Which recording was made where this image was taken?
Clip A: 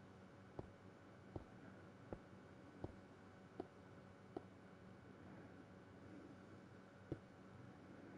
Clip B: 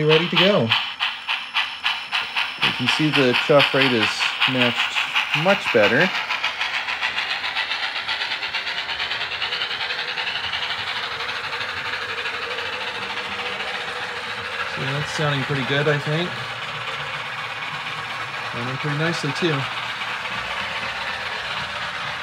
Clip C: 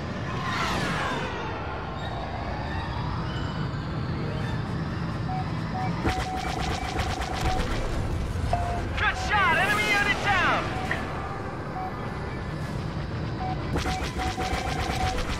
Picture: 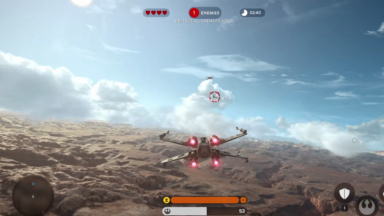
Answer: C